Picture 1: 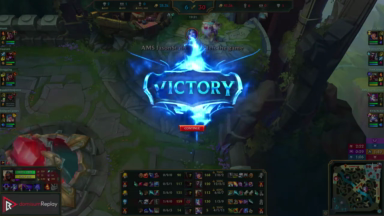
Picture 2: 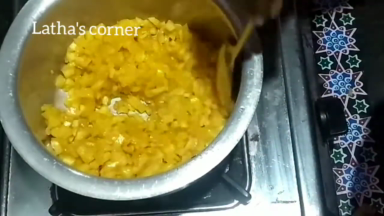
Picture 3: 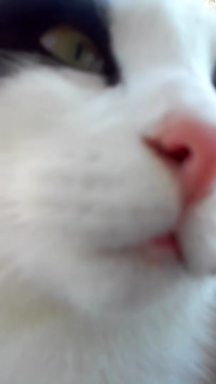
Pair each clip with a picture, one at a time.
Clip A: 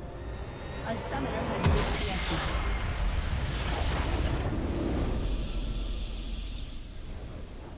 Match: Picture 1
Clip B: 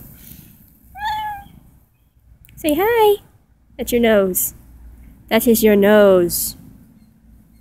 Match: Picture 3